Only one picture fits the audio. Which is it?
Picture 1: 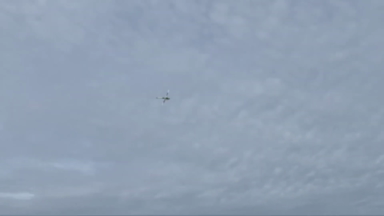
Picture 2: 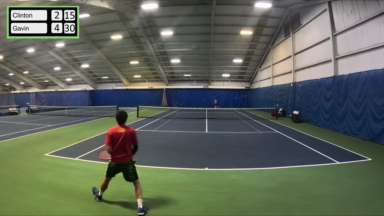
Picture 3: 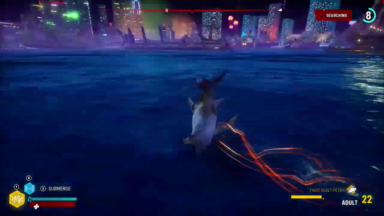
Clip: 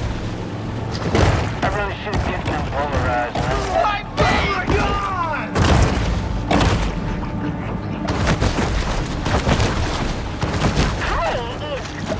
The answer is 3